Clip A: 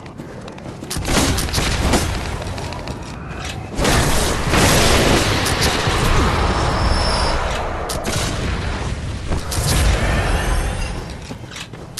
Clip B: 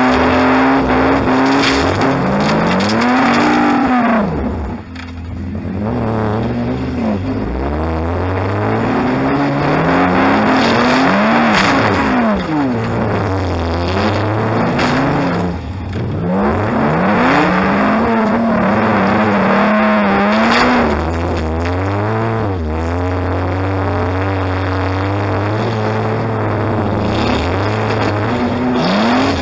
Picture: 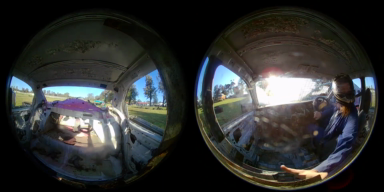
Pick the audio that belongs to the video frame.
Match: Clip B